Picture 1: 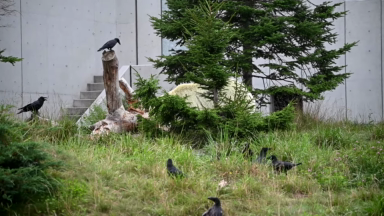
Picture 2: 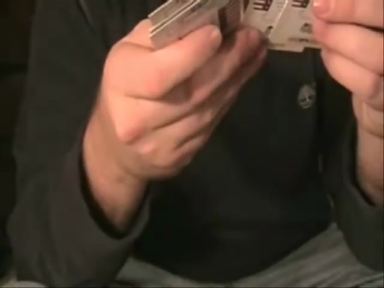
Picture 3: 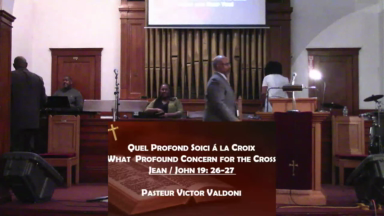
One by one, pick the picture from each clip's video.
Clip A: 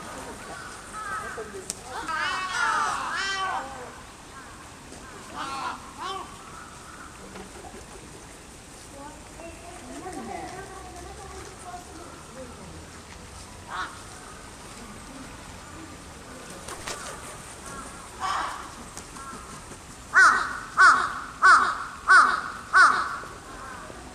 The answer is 1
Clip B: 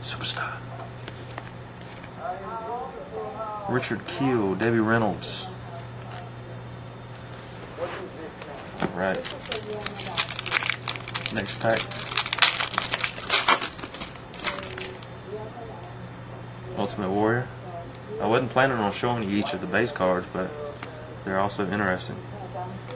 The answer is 2